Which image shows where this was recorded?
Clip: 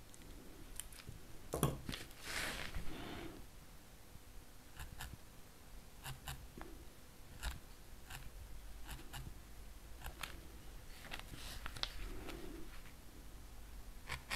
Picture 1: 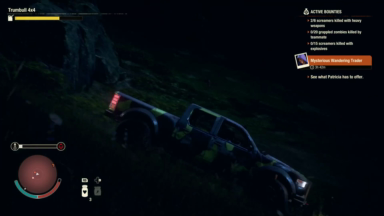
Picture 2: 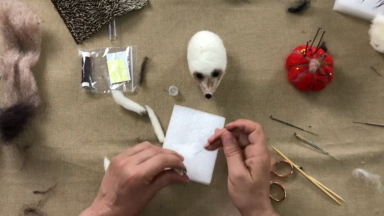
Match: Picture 2